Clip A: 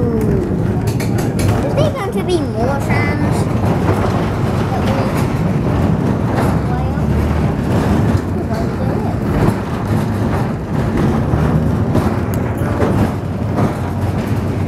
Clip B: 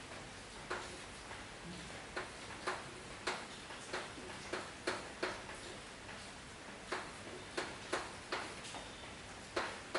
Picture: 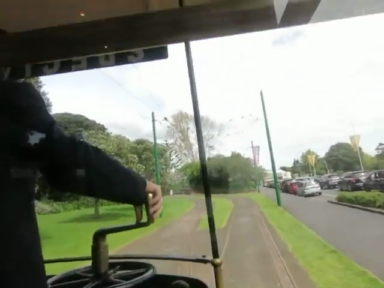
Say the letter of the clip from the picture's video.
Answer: A